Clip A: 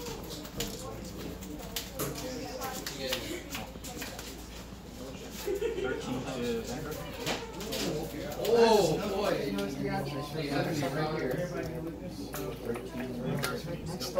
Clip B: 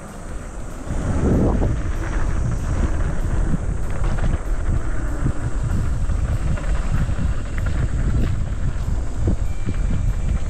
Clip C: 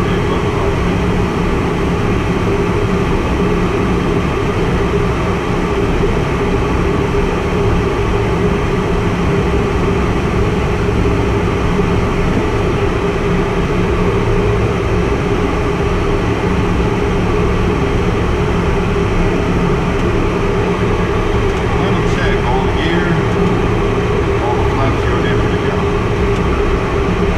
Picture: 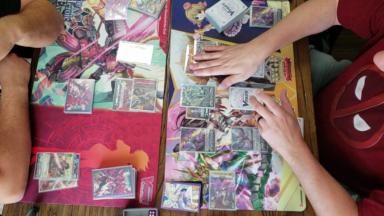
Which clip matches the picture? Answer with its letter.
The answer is A